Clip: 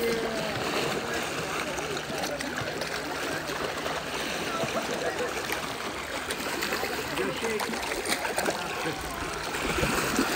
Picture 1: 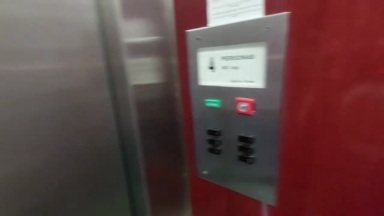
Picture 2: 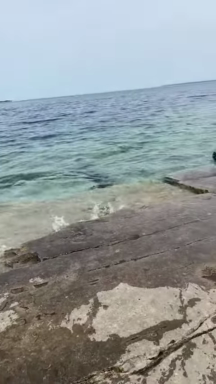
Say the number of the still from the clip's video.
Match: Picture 2